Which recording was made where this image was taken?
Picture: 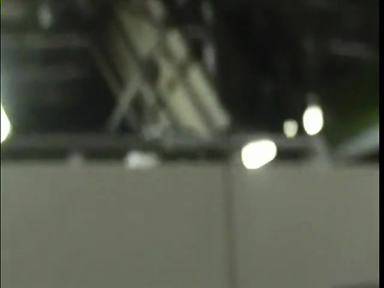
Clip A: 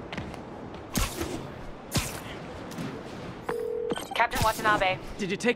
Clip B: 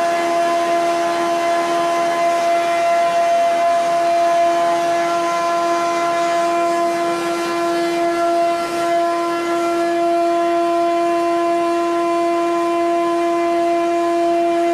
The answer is B